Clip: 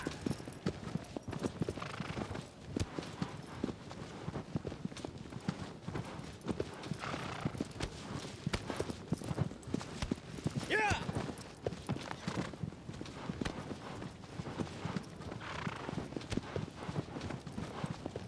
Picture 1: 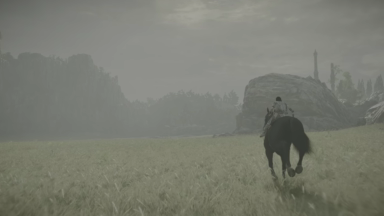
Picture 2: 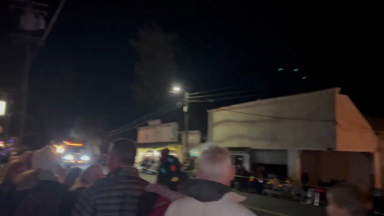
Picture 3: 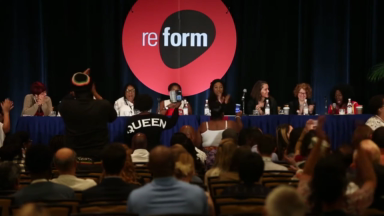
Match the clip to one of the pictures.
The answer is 1